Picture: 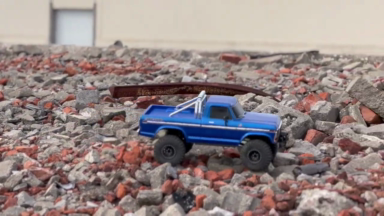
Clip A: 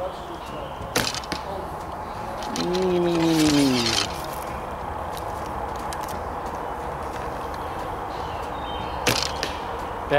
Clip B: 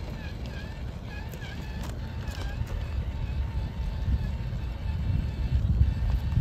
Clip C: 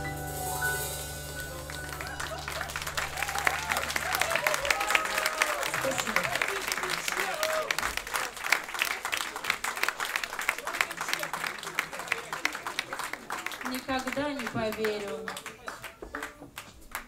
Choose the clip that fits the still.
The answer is B